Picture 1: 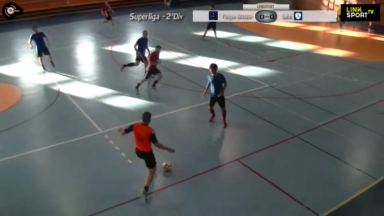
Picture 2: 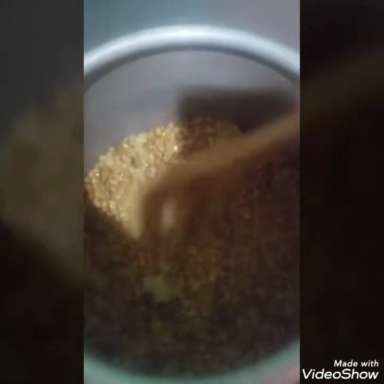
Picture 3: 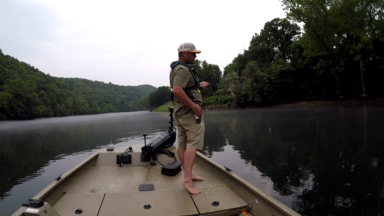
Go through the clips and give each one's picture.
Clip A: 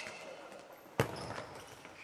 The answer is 1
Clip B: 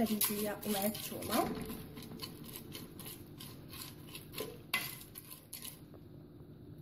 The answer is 2